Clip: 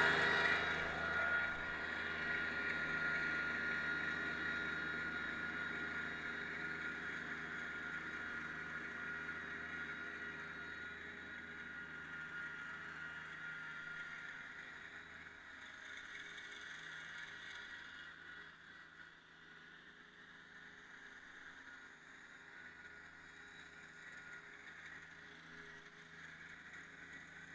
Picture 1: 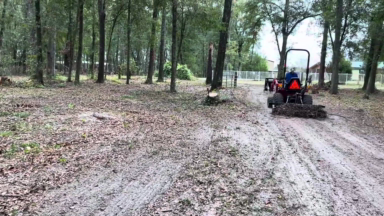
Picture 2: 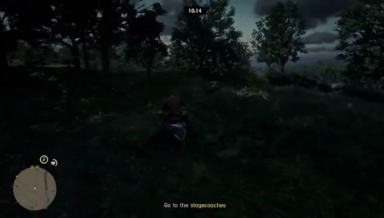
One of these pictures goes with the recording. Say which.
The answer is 1